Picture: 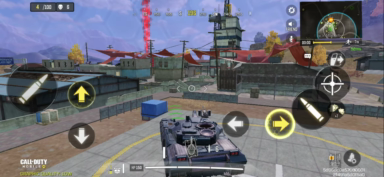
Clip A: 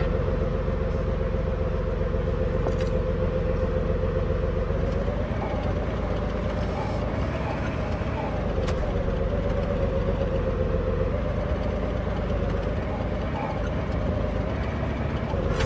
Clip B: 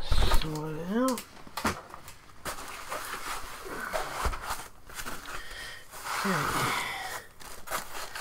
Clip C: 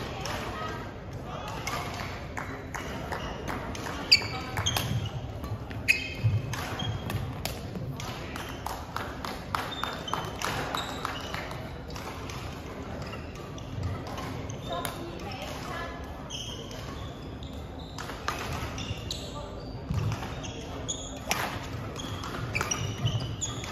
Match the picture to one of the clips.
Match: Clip A